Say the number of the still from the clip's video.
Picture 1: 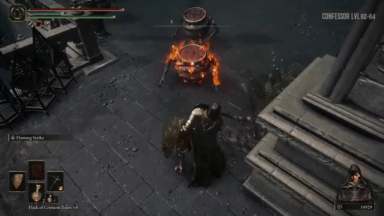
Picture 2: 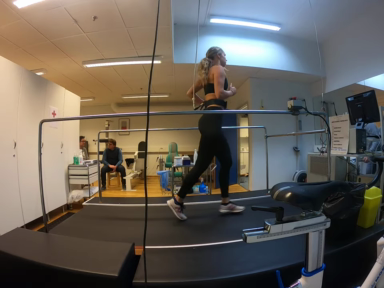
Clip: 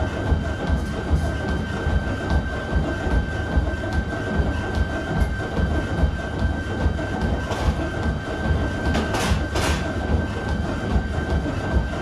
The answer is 2